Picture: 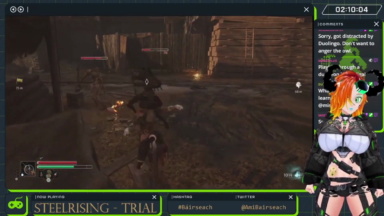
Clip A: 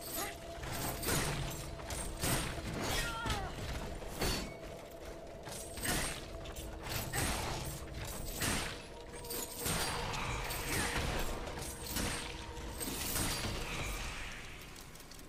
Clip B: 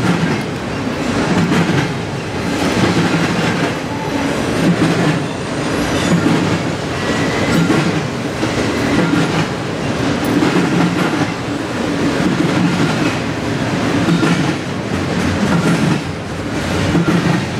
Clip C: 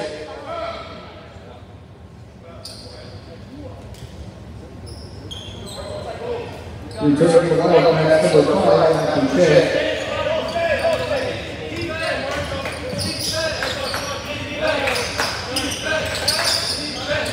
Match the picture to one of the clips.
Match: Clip A